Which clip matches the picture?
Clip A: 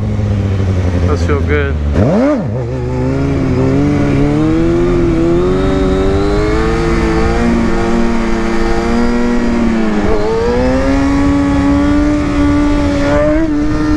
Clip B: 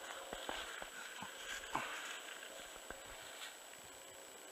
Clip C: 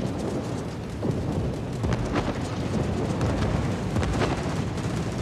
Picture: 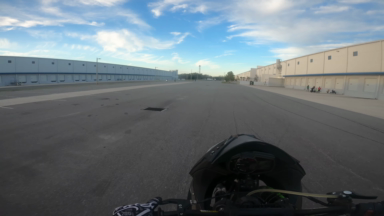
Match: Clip A